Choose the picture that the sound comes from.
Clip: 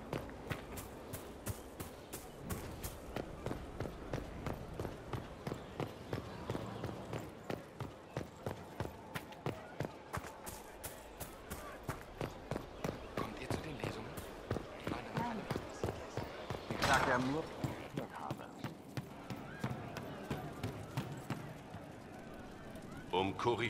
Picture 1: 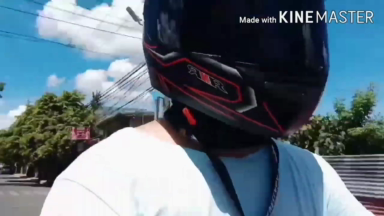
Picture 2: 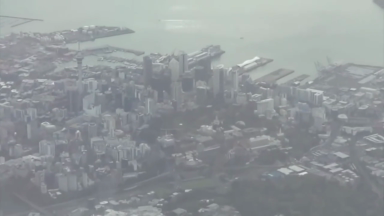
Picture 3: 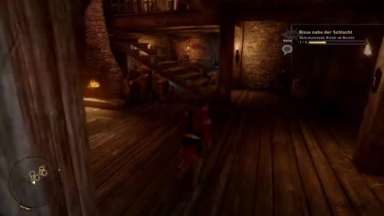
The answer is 3